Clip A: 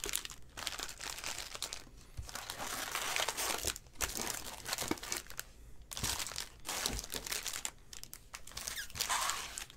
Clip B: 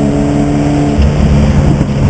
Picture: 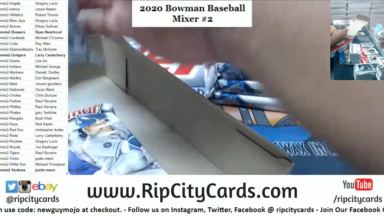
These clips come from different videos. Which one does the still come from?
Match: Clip A